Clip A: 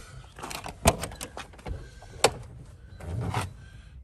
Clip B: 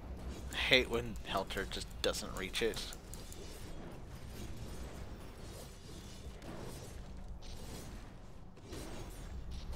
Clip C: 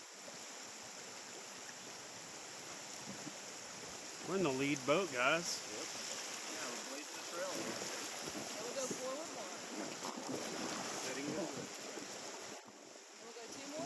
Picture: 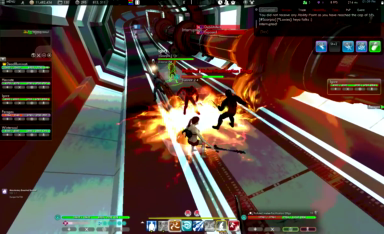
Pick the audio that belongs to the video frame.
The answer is B